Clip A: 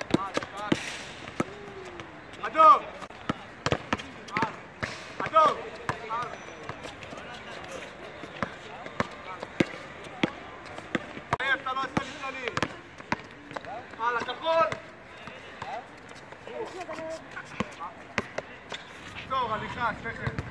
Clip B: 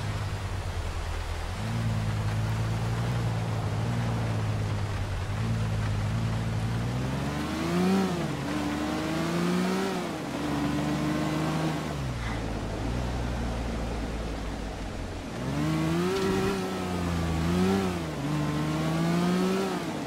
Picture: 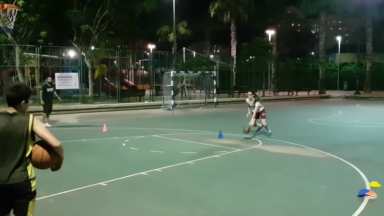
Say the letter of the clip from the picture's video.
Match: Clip A